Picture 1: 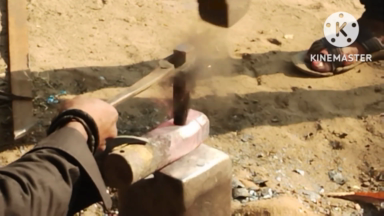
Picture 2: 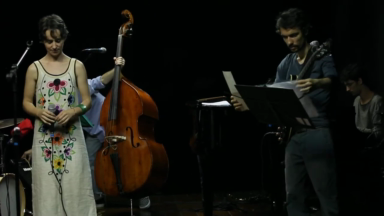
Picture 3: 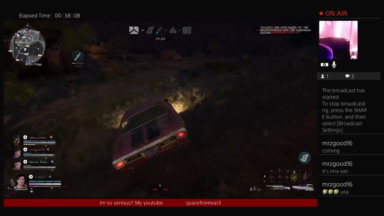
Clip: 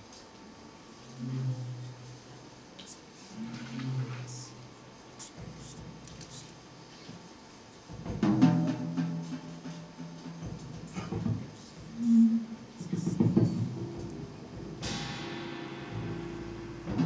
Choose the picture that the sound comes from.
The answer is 2